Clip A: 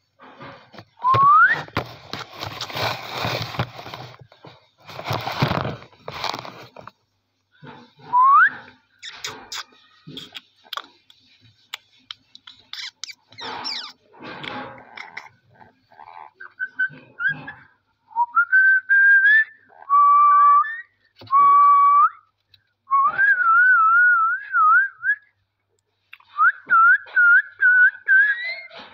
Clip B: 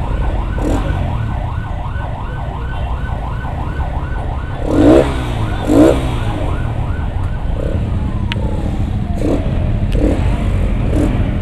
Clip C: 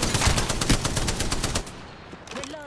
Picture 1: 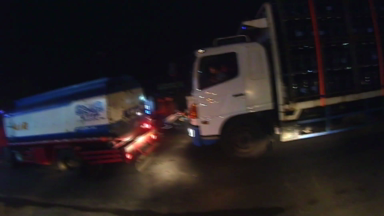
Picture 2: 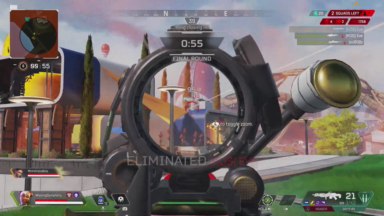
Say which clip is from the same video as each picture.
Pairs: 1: B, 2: C